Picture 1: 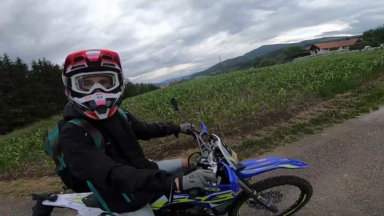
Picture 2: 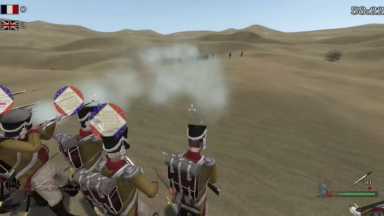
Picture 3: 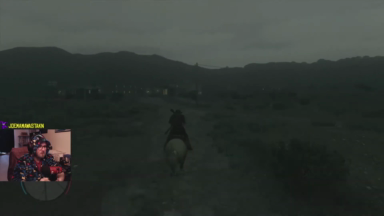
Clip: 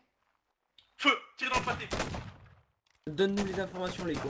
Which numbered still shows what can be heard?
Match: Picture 2